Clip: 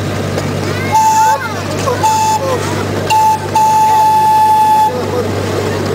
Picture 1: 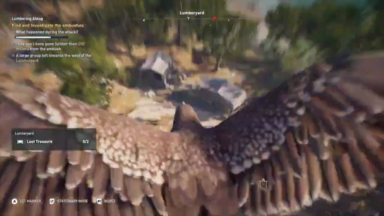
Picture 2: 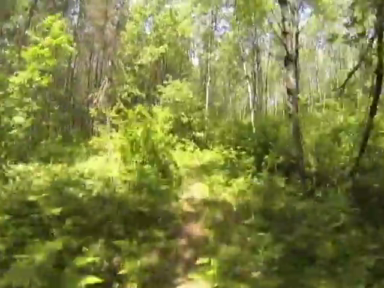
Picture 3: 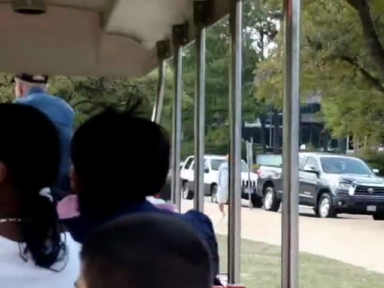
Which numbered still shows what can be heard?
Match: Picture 3